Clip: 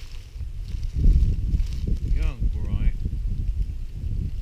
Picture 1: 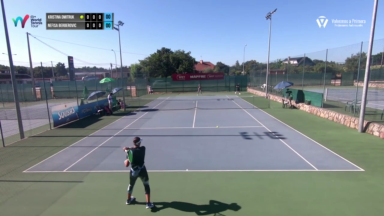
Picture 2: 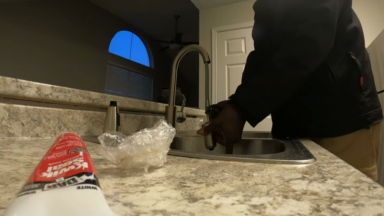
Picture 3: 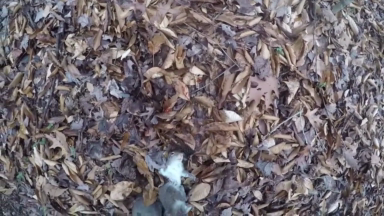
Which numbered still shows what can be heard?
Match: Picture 3